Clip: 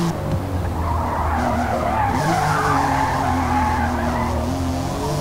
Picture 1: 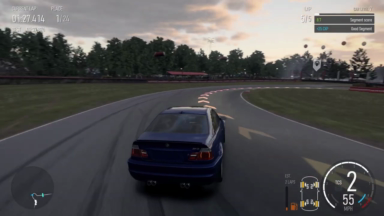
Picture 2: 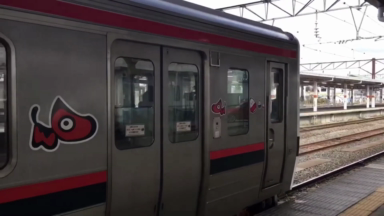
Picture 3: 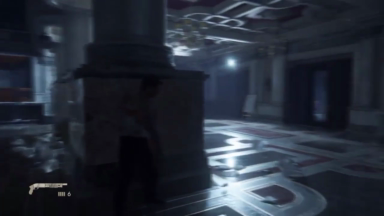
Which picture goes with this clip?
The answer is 1